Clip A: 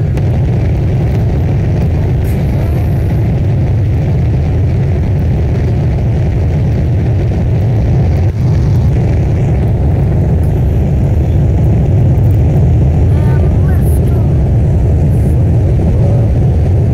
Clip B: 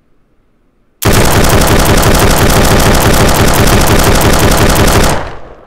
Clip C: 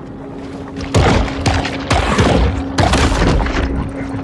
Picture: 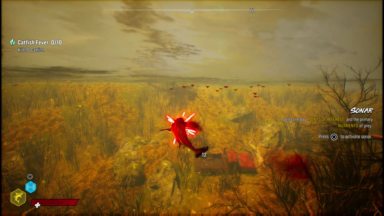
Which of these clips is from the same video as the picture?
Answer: C